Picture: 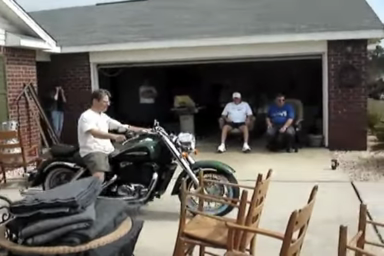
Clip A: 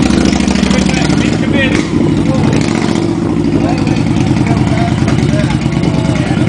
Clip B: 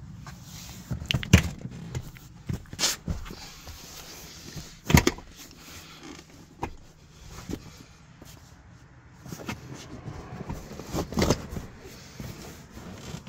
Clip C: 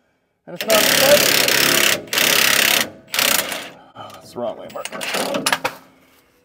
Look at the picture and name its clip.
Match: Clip A